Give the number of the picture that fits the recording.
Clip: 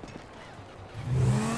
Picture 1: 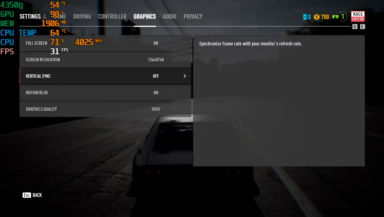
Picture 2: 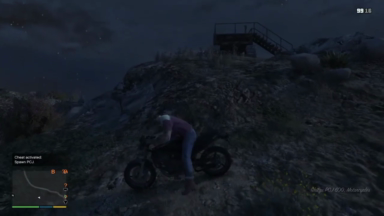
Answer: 2